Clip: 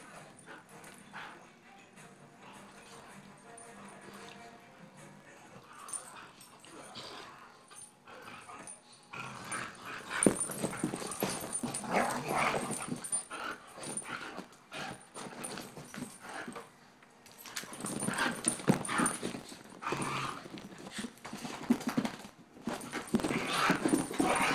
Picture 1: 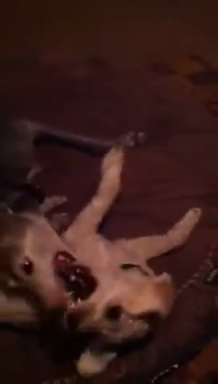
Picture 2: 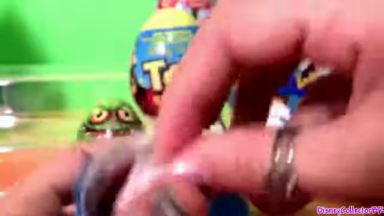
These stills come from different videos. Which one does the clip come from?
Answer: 1